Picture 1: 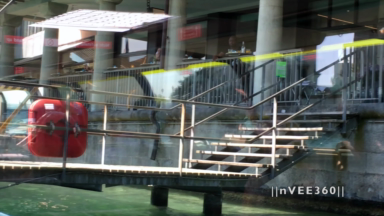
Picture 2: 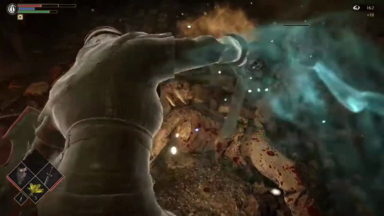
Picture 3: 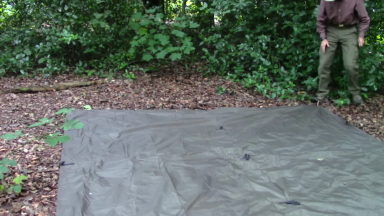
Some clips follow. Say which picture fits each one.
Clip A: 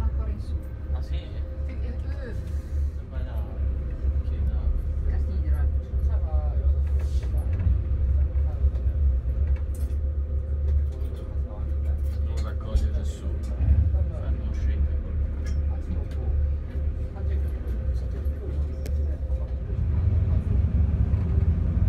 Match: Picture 1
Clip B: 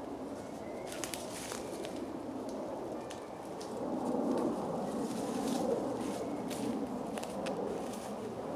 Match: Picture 3